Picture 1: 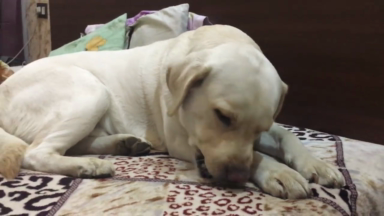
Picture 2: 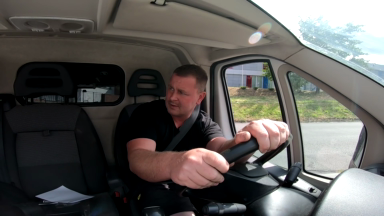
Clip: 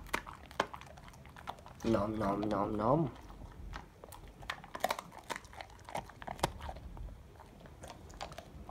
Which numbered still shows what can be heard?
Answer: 1